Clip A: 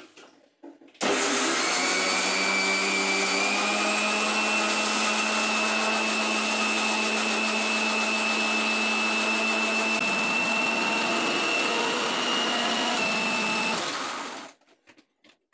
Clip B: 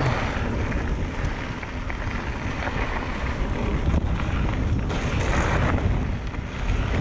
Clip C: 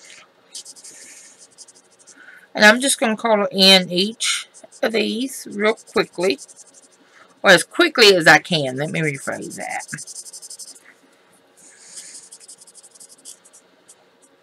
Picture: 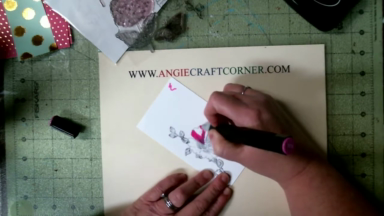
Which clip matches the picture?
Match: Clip C